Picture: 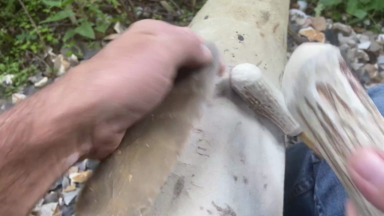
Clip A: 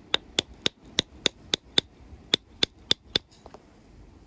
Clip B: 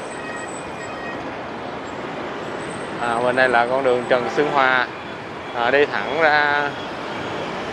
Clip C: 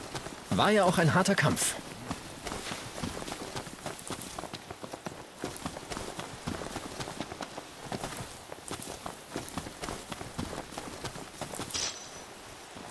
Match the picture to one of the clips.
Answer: A